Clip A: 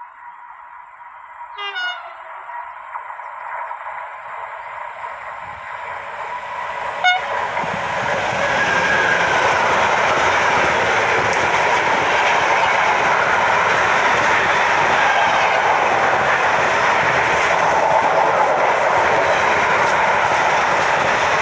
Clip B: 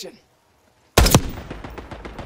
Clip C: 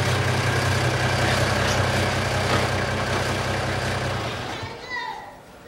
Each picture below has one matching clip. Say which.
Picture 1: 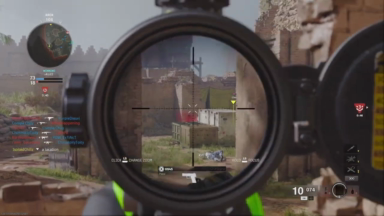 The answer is B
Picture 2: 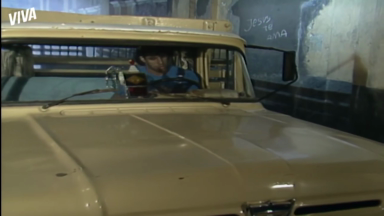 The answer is C